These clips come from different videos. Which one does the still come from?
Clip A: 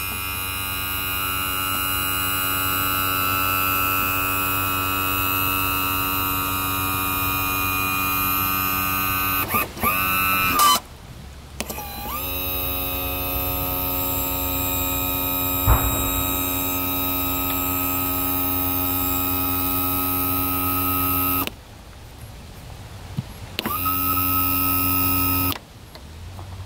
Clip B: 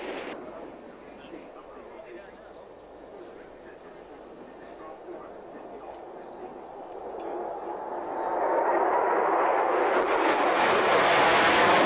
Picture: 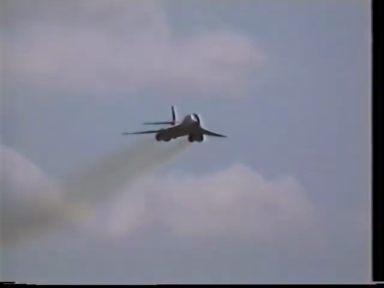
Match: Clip B